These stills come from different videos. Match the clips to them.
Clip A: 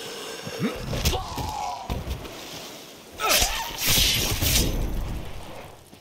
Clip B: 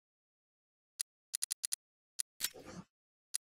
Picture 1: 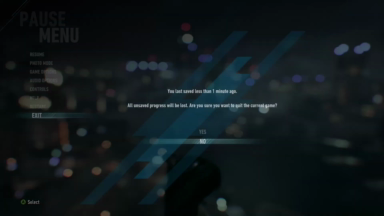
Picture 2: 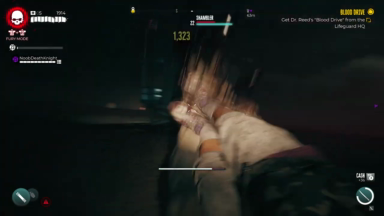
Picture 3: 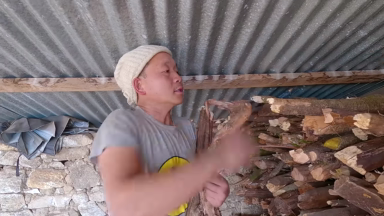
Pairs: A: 2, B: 1